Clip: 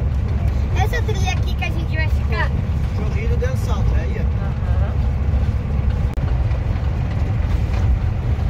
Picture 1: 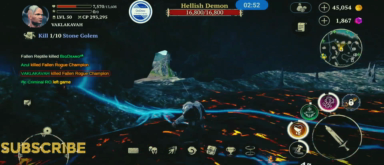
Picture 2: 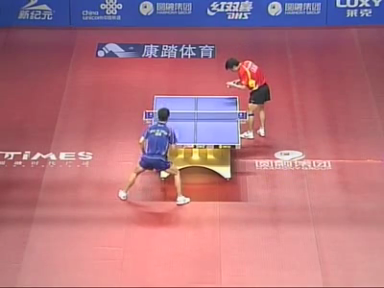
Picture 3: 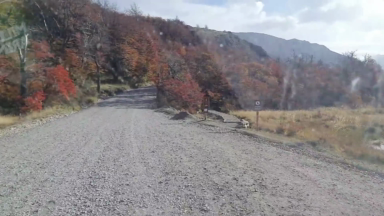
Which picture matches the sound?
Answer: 3